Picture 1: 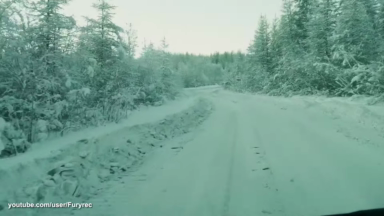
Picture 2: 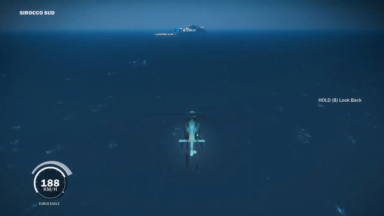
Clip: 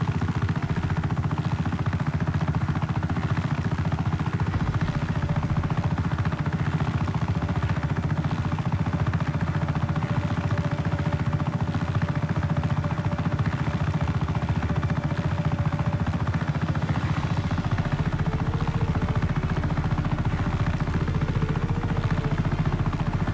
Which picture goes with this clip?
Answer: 2